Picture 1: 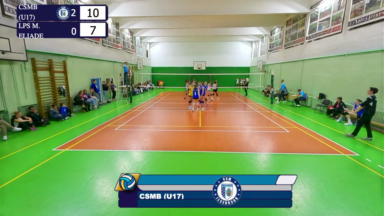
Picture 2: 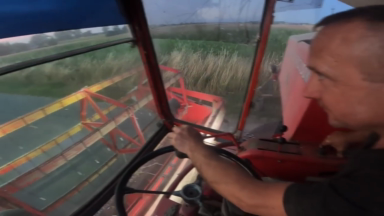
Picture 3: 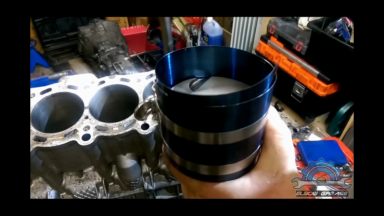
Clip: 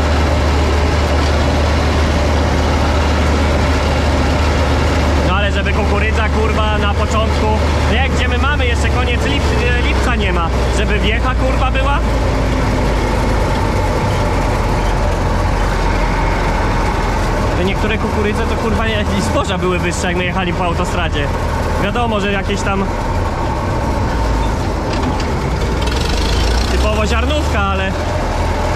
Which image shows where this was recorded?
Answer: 2